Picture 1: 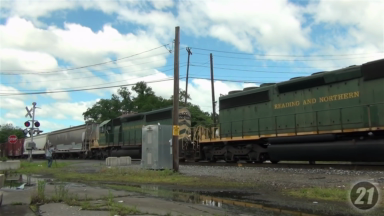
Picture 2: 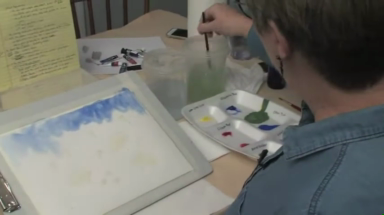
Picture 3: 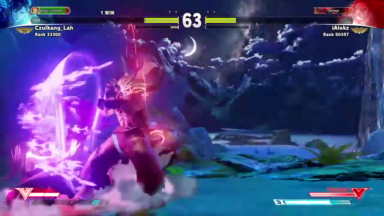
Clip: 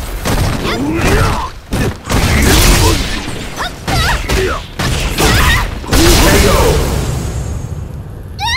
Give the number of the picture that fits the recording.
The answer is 3